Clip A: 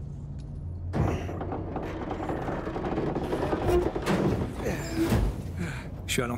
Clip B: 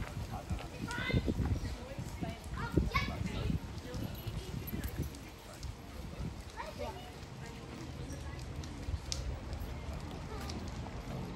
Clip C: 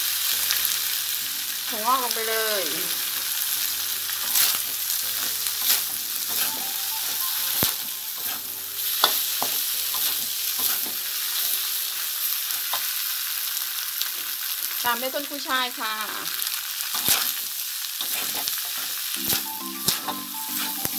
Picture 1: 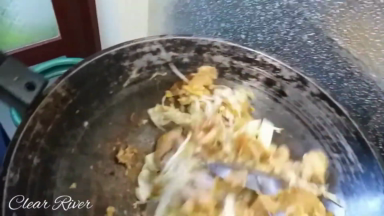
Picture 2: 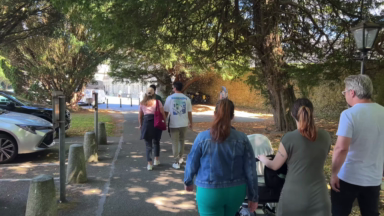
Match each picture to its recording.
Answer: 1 C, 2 B